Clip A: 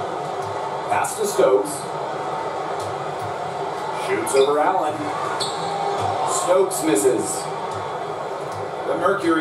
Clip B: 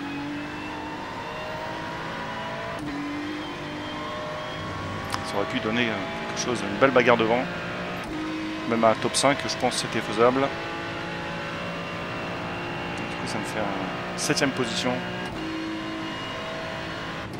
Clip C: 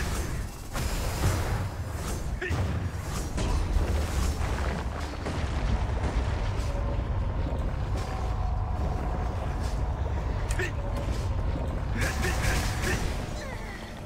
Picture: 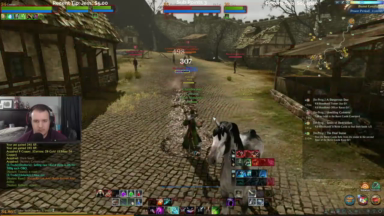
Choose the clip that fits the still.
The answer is C